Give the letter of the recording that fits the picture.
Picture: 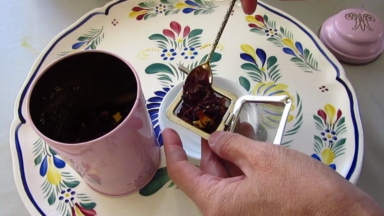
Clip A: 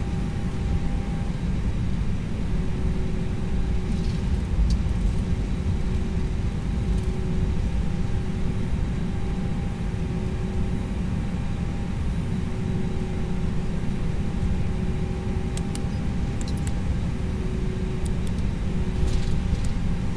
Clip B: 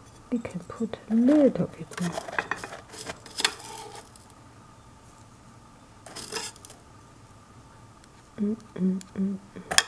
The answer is B